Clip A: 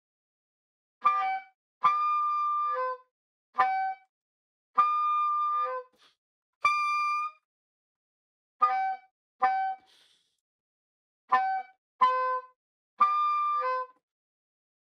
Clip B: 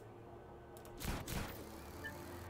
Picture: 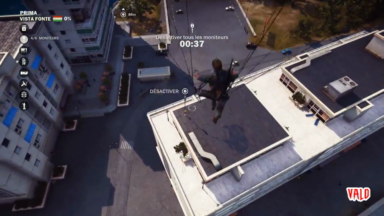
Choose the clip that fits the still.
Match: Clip B